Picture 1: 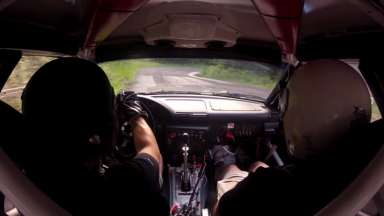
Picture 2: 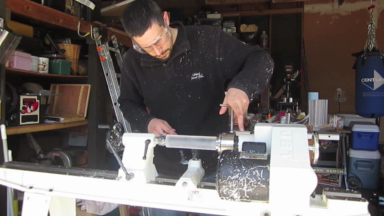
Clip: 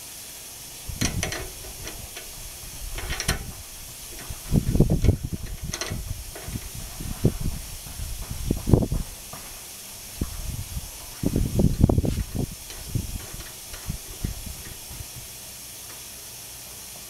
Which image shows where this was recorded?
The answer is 2